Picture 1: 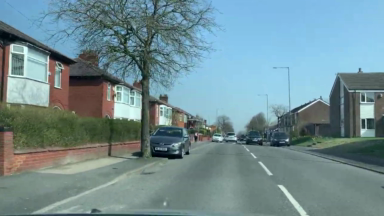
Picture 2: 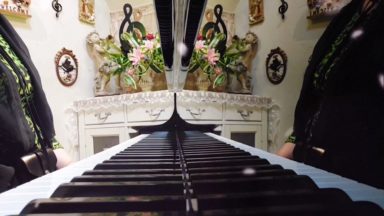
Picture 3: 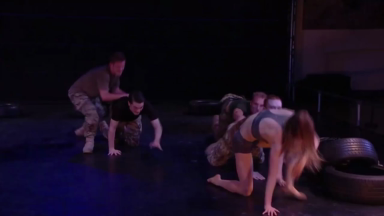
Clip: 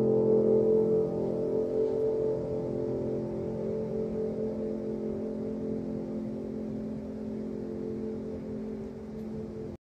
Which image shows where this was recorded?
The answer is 2